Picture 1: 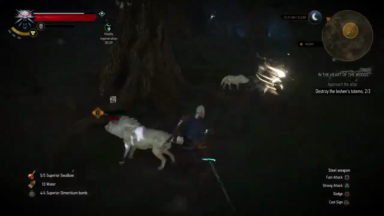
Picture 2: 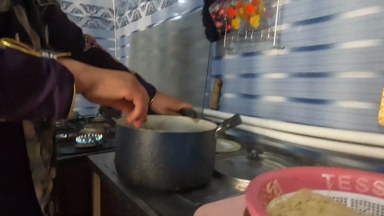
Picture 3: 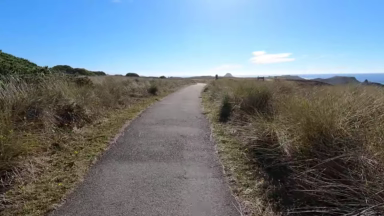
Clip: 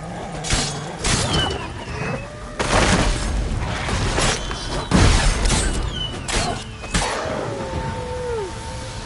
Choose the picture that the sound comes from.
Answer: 1